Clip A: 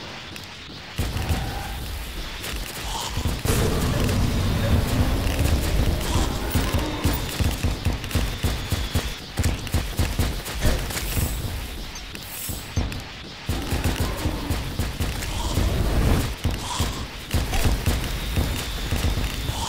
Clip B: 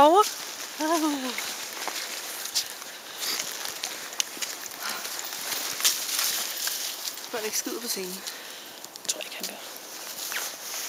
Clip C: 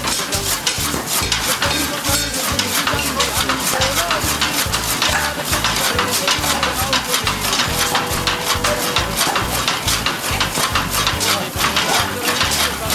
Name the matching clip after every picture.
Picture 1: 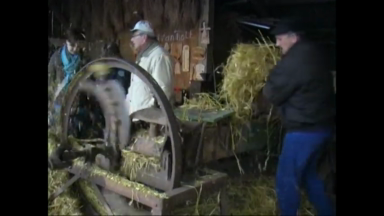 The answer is C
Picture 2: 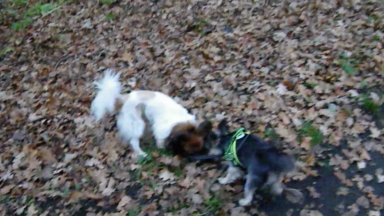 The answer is B